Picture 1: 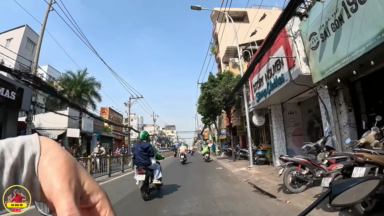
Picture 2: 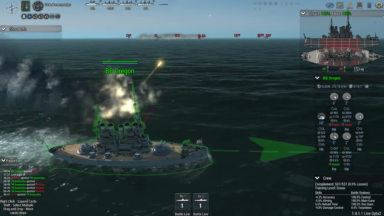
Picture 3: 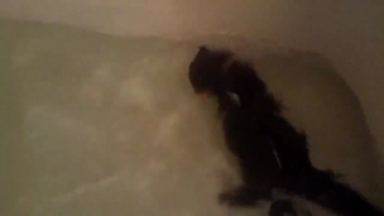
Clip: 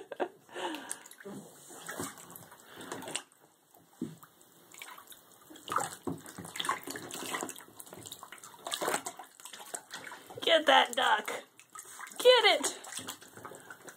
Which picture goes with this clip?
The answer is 3